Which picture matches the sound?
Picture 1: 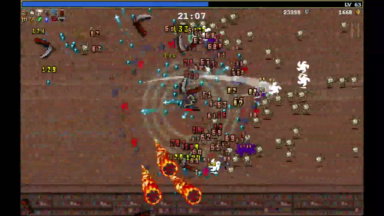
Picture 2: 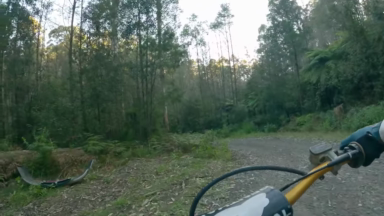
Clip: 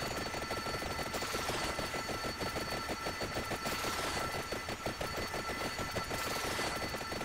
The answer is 1